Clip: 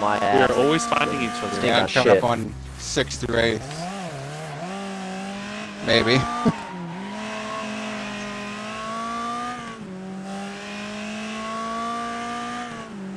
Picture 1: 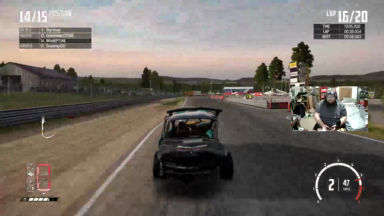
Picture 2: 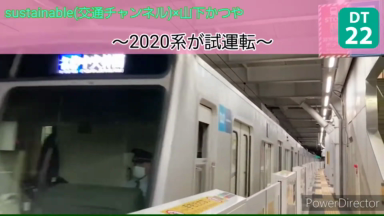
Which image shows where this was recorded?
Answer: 1